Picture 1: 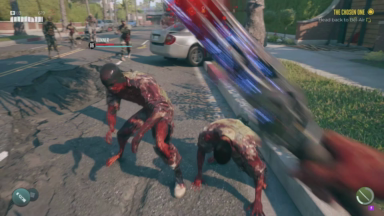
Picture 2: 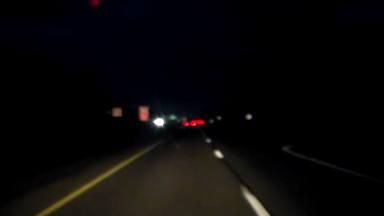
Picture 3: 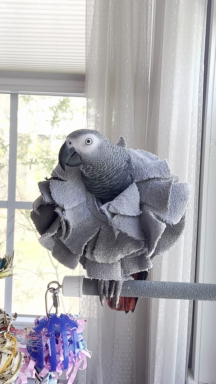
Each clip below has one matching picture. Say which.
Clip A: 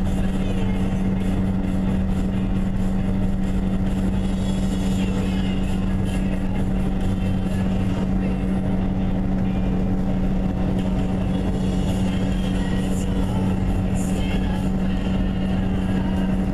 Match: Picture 2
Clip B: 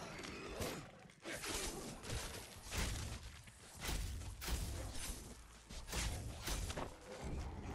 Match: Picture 1